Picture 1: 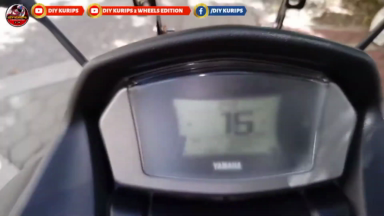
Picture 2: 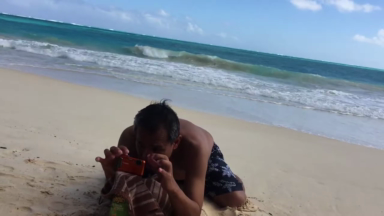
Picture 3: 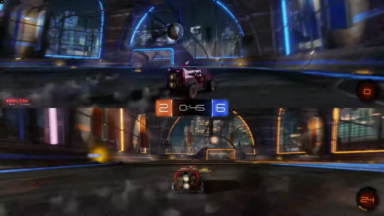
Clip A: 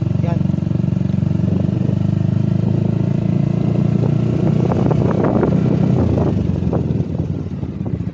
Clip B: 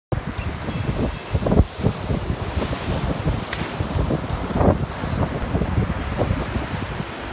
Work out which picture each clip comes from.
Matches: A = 1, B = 2